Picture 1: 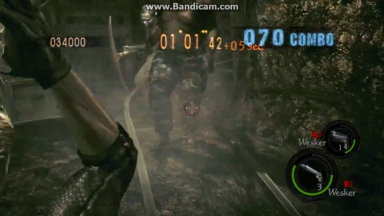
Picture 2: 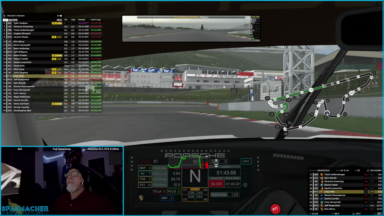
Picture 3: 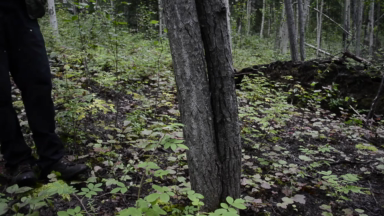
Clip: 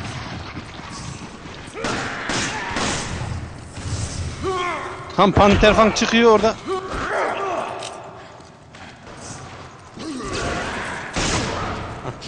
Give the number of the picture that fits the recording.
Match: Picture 1